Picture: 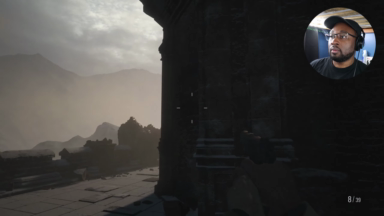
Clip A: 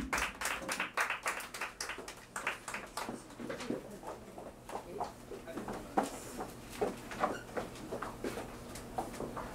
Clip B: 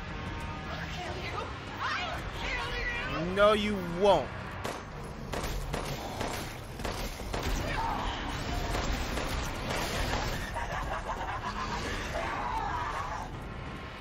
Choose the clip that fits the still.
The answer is B